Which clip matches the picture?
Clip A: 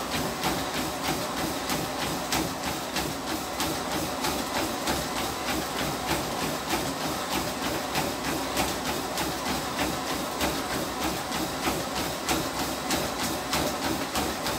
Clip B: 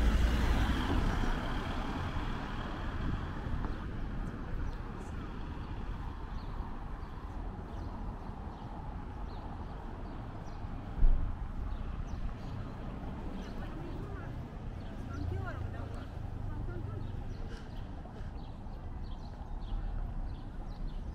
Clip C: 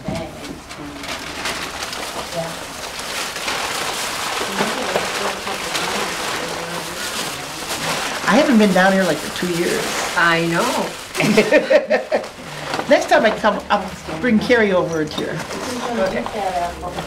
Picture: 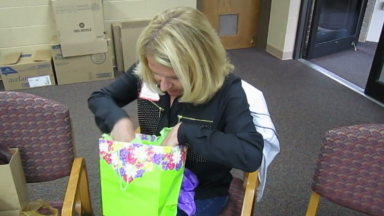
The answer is C